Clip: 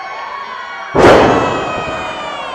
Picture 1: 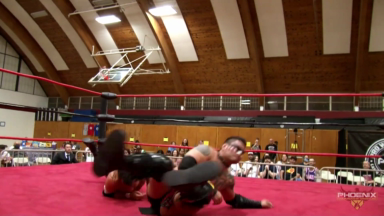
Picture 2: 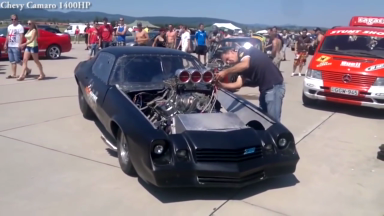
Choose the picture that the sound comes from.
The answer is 1